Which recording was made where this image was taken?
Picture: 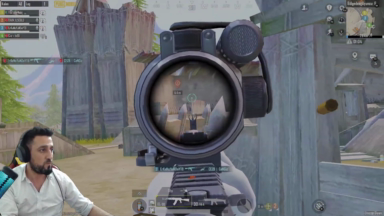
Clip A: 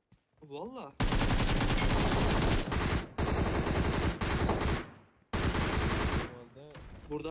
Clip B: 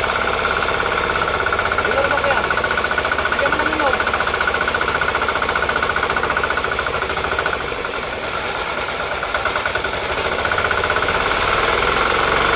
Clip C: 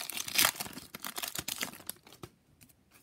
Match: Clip A